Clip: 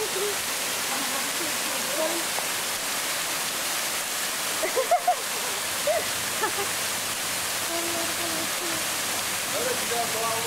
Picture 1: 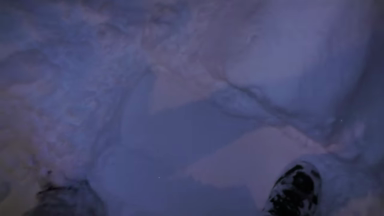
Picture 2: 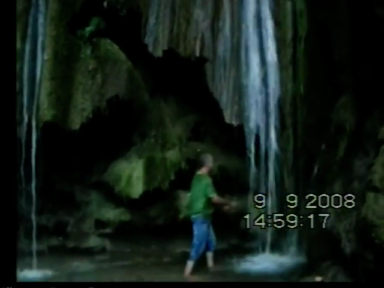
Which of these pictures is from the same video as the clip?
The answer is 2